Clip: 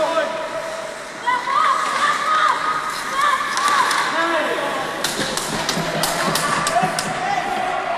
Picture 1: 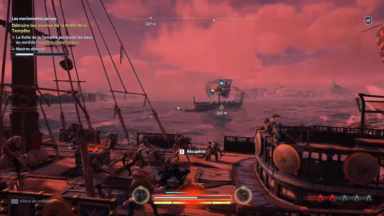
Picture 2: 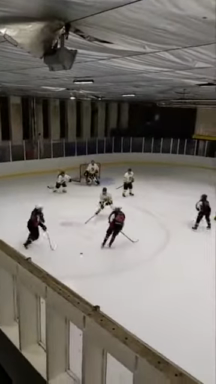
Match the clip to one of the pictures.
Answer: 2